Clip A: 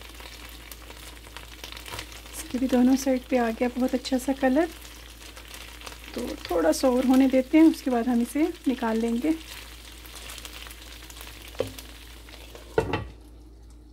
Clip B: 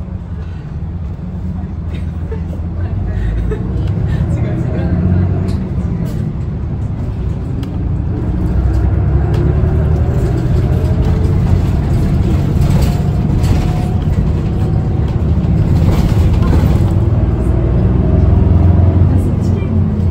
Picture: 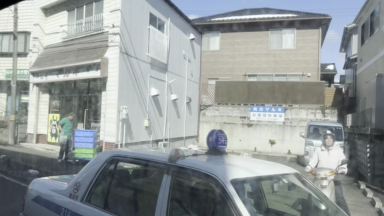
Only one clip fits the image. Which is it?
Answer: B